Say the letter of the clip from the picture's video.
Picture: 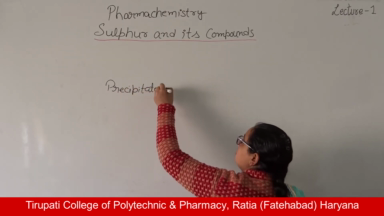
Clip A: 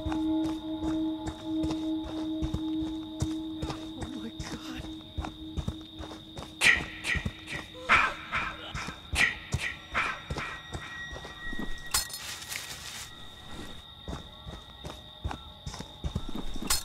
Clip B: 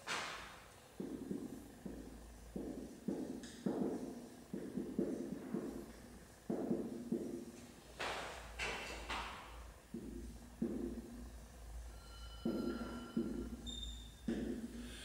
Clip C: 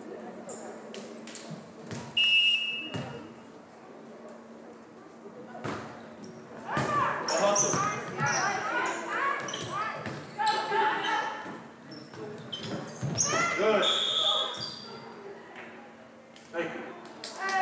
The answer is B